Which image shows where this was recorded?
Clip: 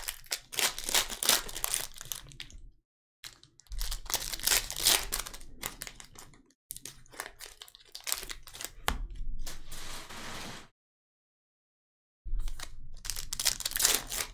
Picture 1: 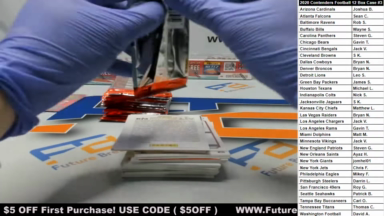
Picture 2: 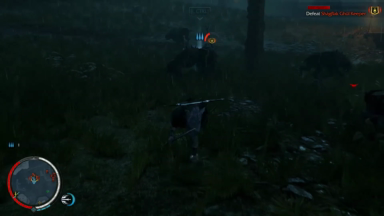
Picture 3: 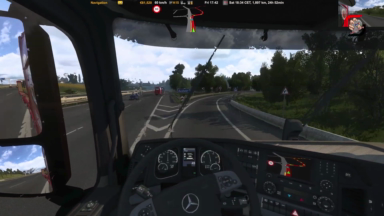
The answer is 1